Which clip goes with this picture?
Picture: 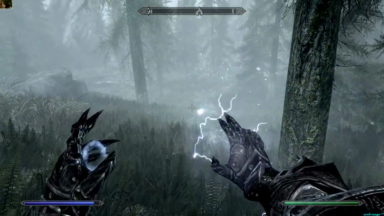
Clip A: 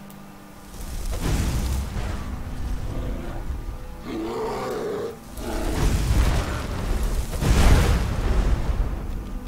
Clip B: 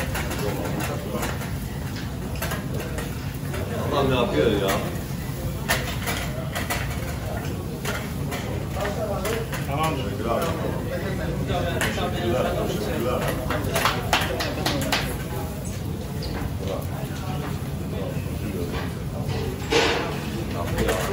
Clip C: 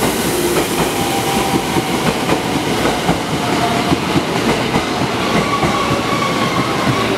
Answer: A